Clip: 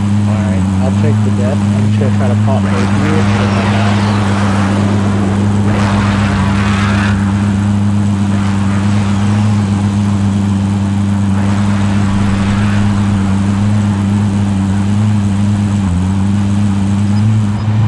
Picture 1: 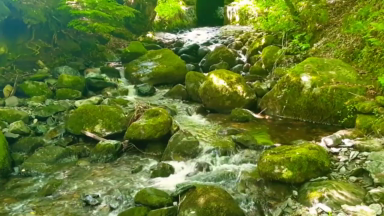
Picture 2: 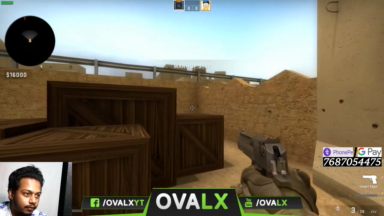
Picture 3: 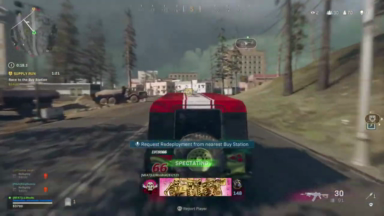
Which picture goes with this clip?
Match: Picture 3